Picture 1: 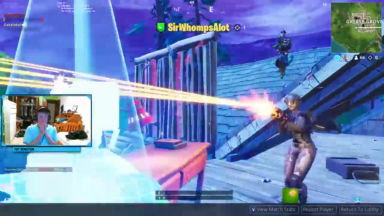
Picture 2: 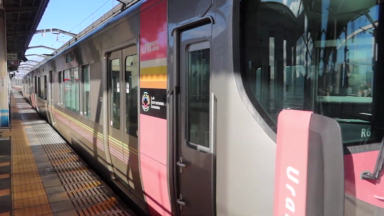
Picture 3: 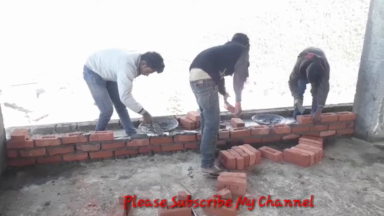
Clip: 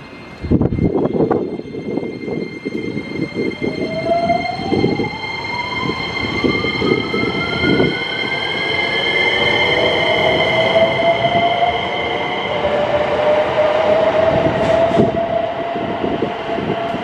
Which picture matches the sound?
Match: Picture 2